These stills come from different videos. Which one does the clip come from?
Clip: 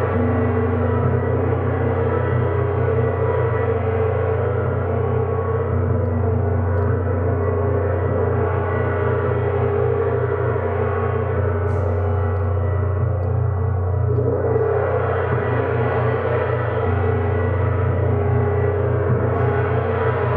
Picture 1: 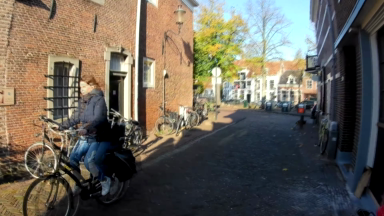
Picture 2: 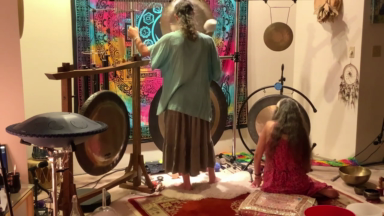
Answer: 2